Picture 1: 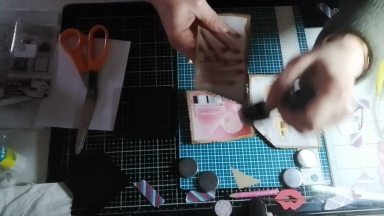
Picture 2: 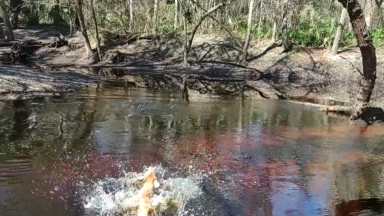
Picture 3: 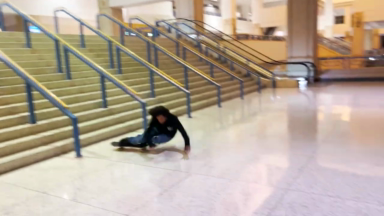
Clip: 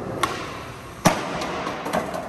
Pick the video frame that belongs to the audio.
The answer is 3